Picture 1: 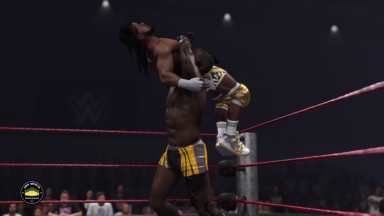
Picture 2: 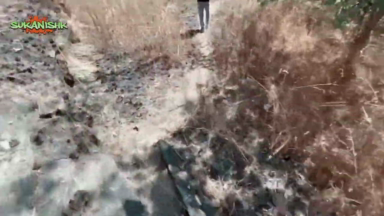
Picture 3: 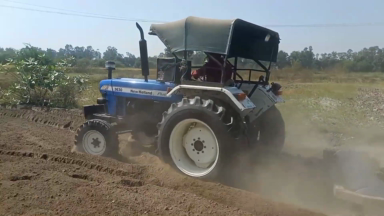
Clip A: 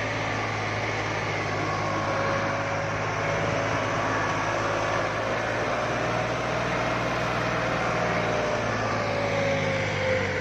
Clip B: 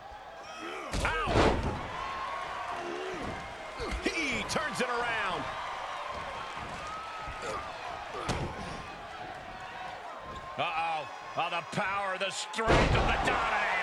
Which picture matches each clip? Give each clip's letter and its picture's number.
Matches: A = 3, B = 1